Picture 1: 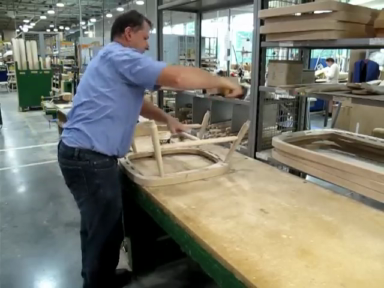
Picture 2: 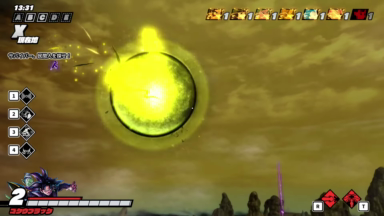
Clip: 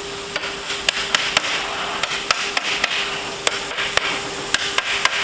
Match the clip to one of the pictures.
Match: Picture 1